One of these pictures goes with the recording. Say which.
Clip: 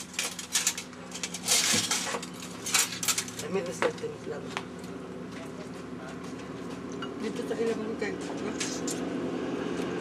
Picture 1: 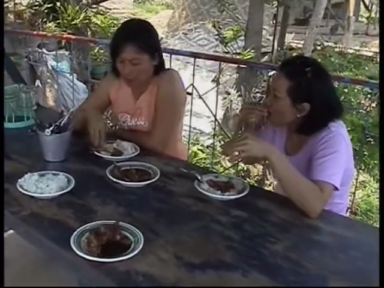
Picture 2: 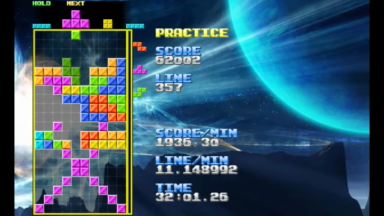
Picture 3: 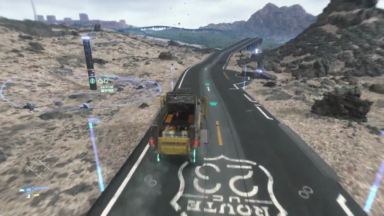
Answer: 1